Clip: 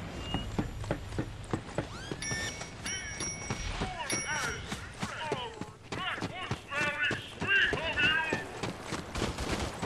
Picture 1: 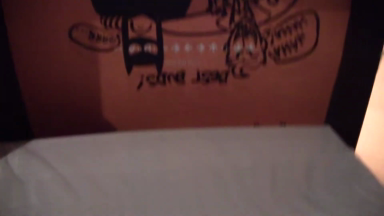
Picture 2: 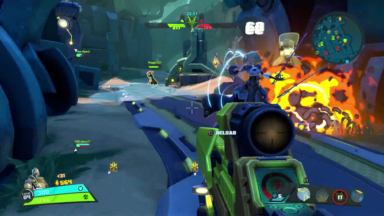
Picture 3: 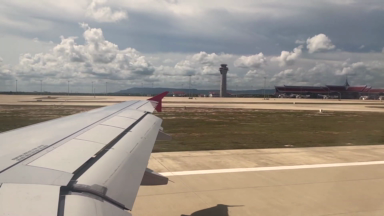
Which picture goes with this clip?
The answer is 2